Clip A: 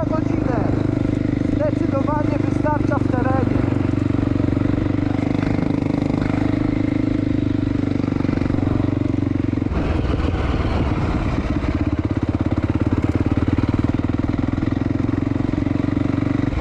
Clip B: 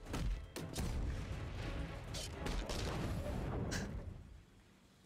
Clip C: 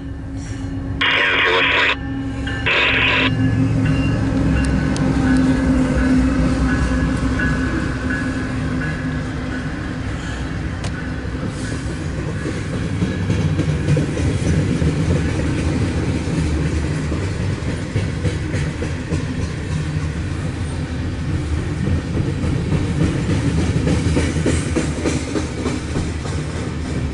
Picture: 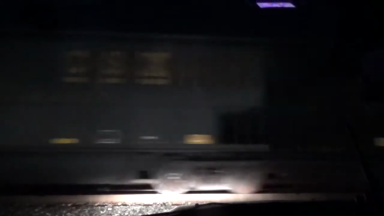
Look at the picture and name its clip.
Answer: C